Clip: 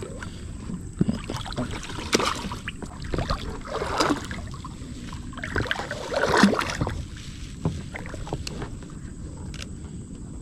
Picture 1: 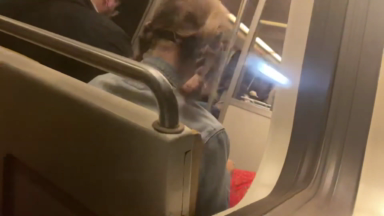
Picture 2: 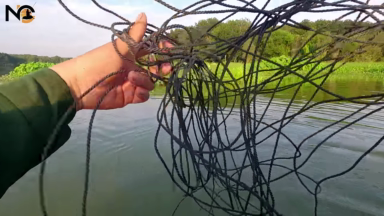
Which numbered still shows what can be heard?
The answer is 2